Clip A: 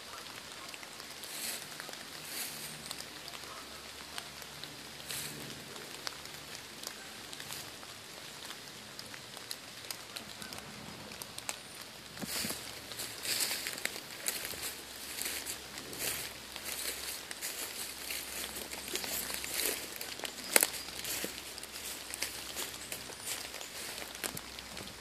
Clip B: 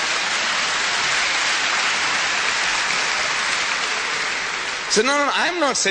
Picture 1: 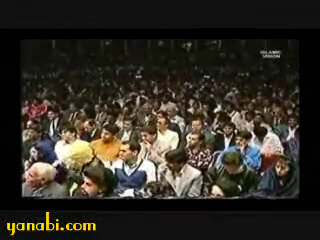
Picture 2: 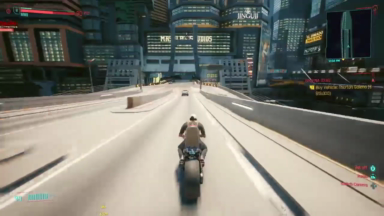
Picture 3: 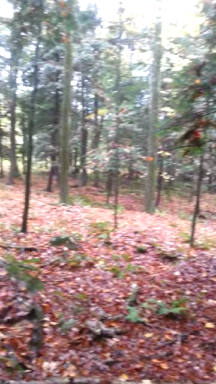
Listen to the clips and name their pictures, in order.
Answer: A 3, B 1